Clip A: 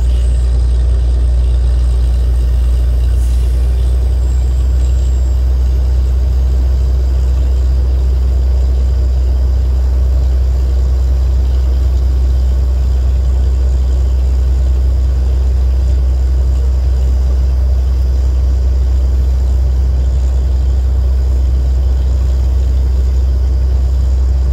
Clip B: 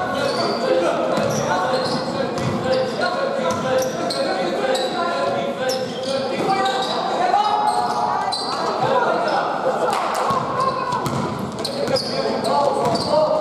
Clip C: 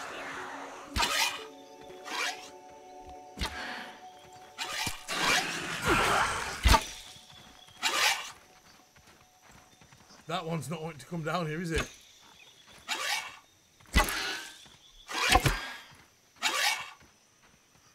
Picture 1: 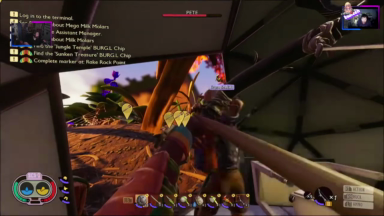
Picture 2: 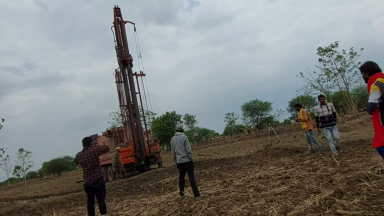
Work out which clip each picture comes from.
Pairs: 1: C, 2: A